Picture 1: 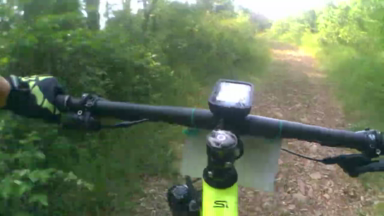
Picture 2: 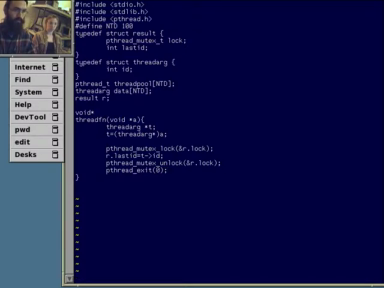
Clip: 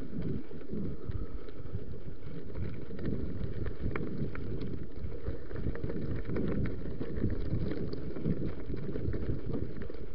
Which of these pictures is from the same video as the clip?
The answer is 1